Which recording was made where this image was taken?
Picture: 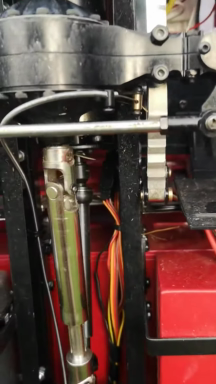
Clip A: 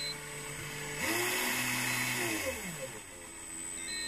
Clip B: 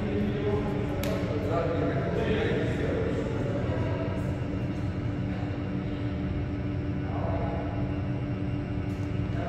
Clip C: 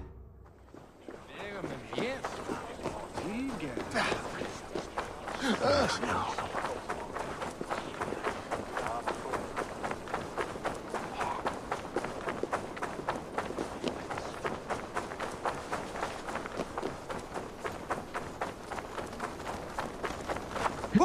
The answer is A